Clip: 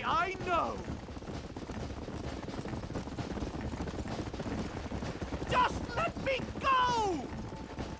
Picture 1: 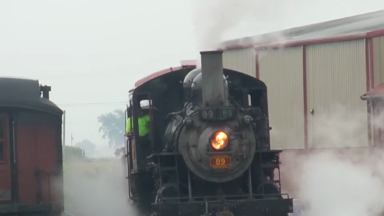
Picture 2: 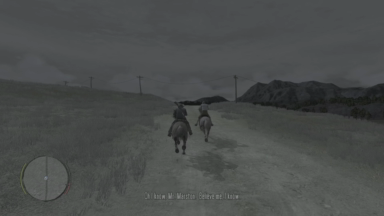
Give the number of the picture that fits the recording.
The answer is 2